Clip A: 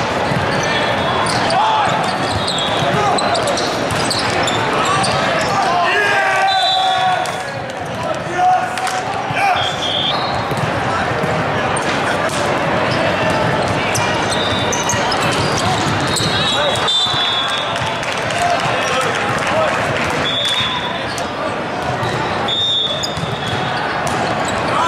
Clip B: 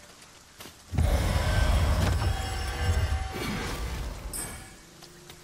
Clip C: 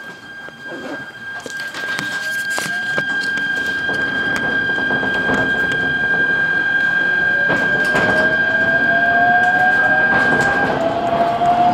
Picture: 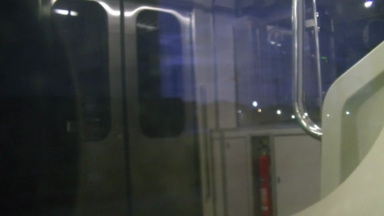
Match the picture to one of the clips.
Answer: C